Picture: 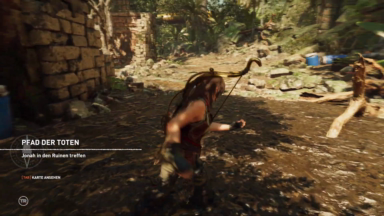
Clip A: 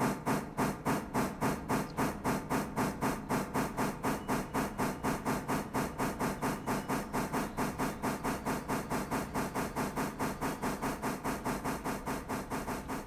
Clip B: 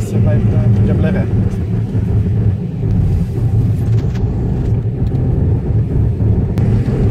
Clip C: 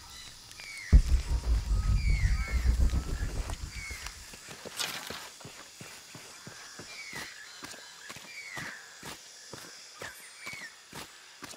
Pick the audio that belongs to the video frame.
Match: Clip C